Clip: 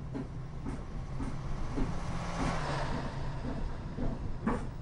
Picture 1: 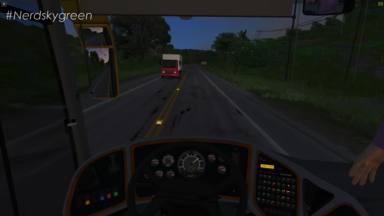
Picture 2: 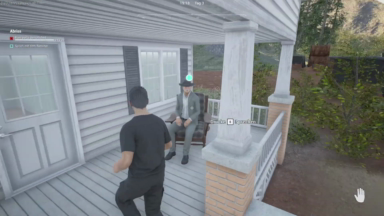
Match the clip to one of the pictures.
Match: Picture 1